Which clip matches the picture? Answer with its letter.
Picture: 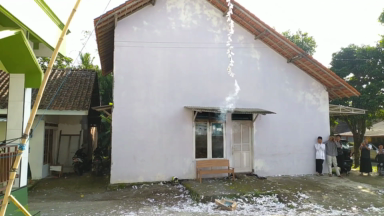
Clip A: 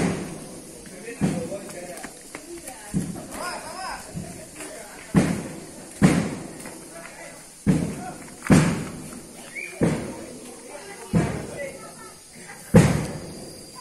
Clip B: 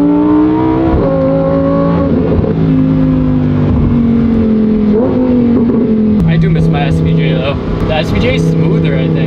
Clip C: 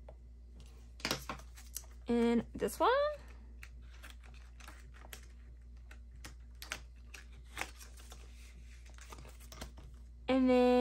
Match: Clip A